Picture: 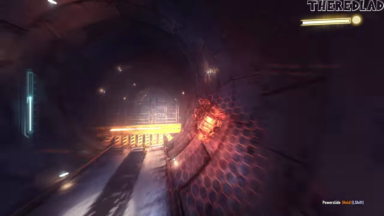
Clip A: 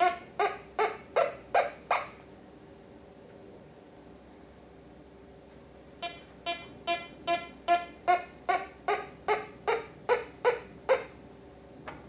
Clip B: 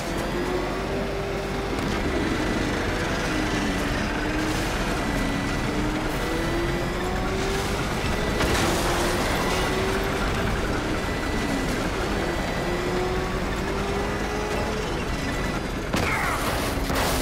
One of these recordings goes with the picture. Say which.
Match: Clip B